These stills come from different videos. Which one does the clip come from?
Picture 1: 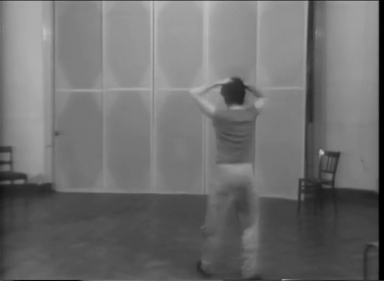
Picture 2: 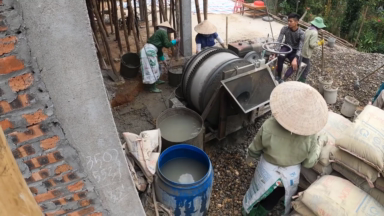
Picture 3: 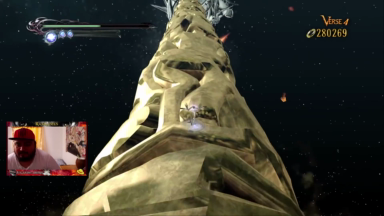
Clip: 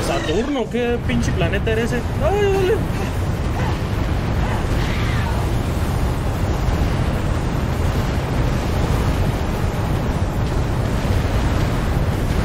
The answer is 3